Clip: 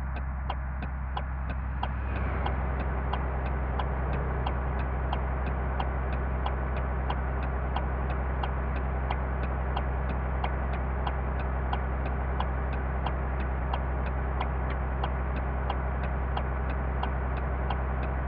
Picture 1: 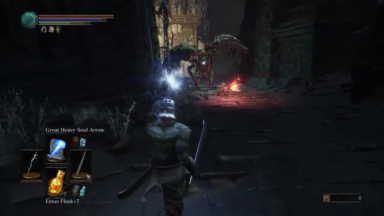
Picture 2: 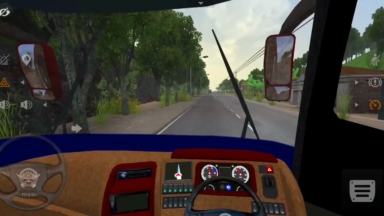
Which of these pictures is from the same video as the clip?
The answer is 2